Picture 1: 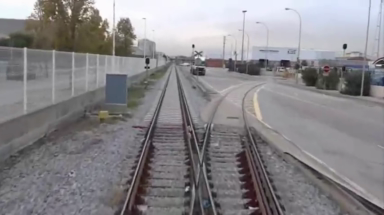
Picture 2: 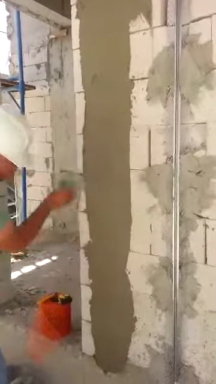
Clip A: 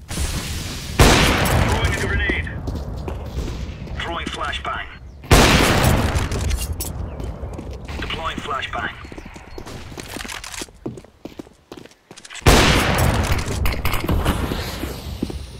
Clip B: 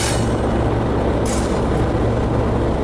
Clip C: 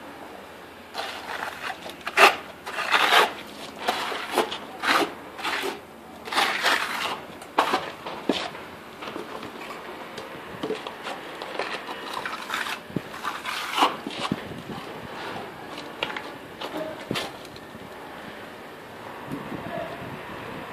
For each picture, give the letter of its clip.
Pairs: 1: B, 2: C